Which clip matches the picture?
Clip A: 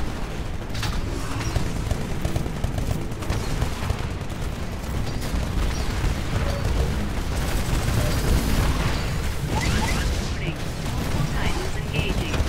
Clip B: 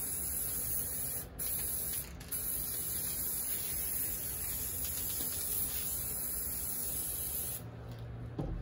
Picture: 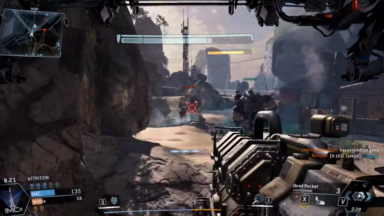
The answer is A